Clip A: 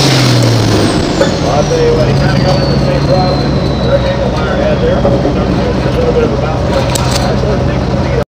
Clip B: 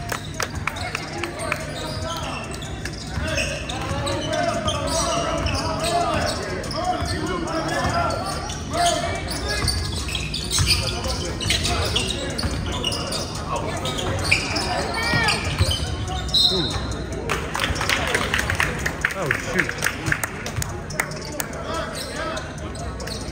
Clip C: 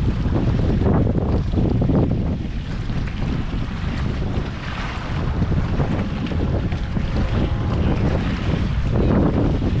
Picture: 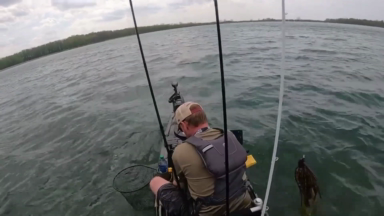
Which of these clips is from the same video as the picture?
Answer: C